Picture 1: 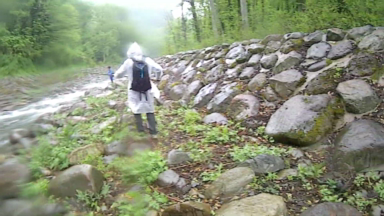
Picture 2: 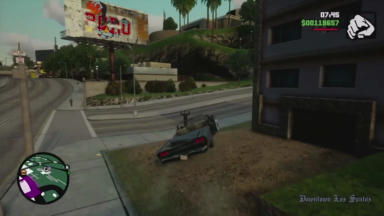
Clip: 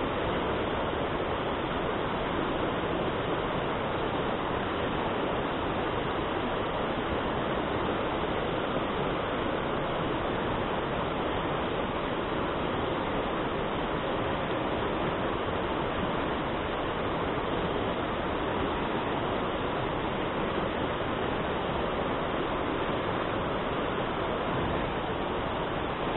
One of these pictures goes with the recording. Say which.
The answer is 1